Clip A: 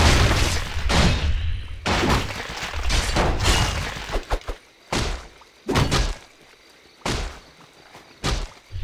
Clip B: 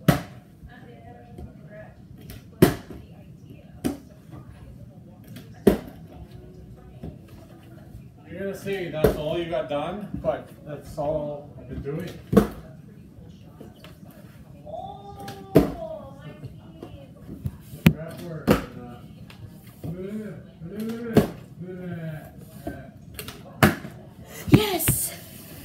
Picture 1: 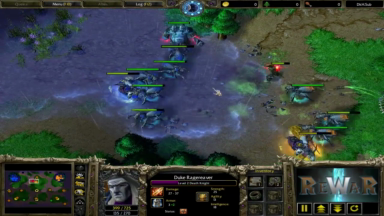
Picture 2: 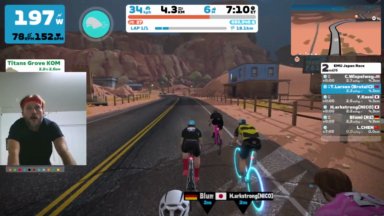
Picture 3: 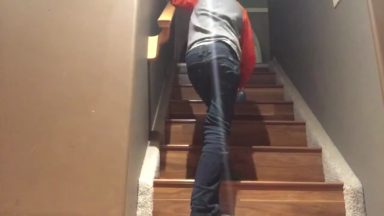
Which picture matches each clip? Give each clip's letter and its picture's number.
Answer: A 1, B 3